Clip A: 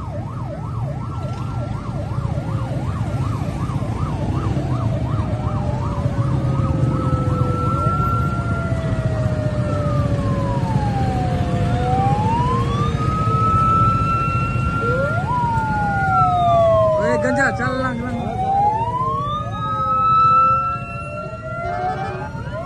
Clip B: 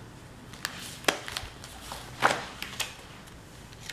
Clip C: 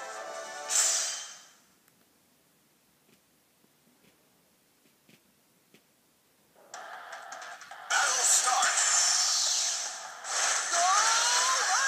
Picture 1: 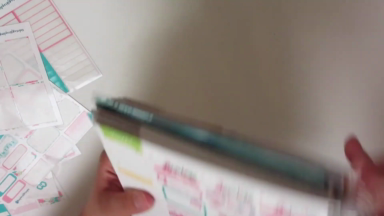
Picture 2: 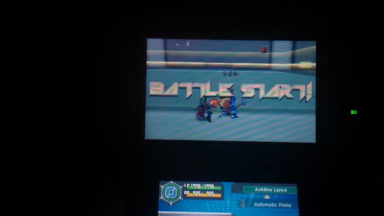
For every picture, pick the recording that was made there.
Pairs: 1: B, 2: C